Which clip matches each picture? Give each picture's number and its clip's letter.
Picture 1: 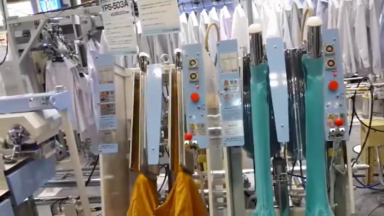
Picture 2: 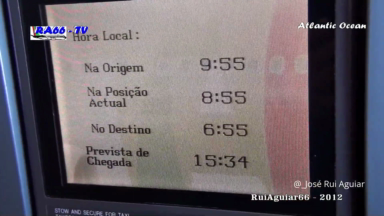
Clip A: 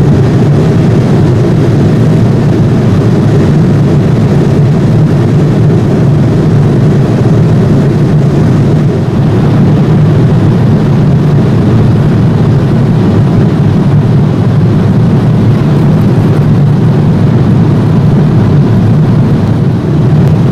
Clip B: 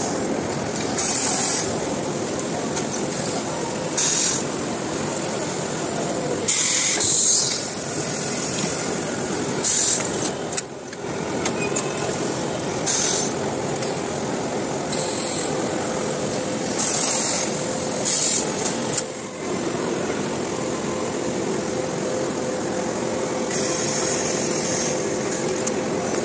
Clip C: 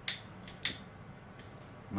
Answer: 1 B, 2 A